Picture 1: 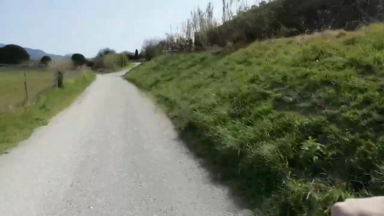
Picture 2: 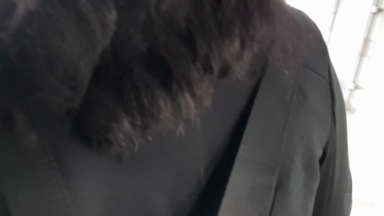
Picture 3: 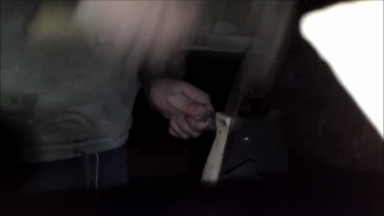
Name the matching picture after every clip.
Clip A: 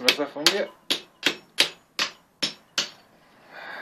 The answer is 3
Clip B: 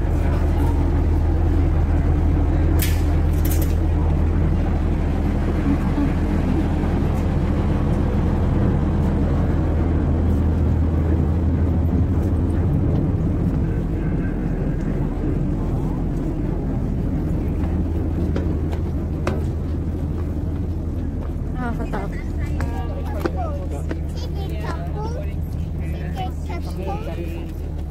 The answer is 2